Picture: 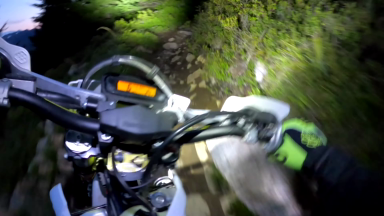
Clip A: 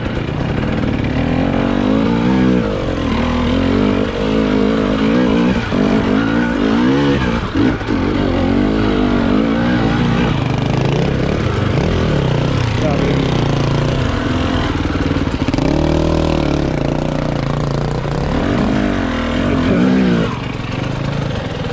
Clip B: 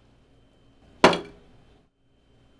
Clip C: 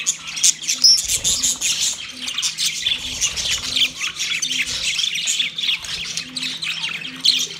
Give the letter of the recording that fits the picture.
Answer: A